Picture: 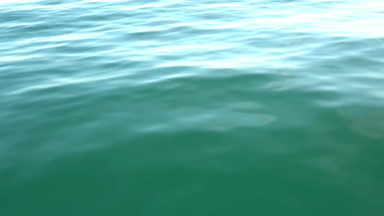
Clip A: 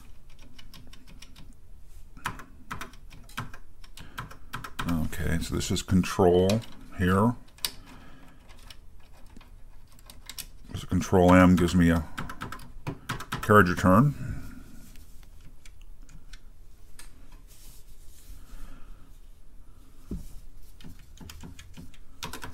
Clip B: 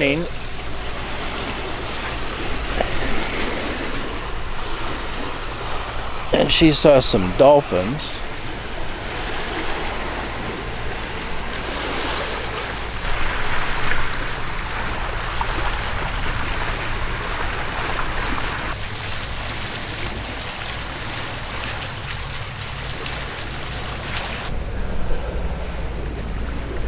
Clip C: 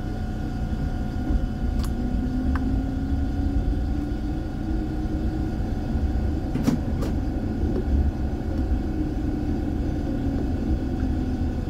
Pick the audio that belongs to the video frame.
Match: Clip B